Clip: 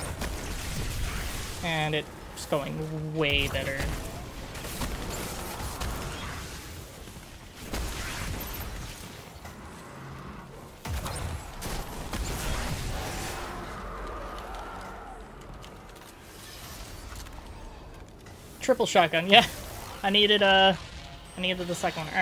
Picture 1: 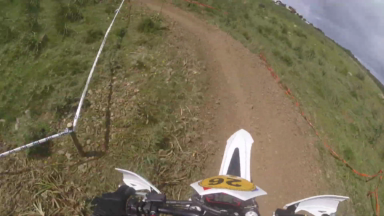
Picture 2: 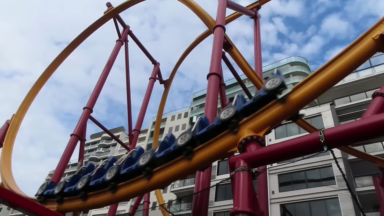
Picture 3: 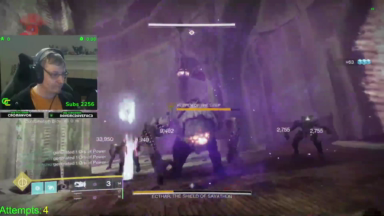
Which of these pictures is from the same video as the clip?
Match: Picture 3